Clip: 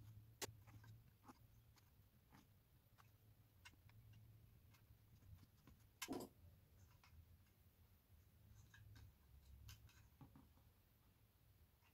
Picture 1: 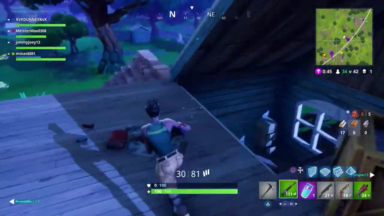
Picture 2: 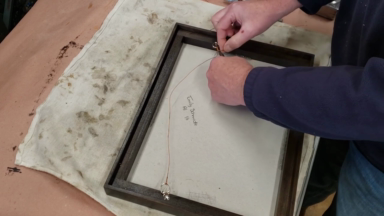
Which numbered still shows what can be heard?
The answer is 2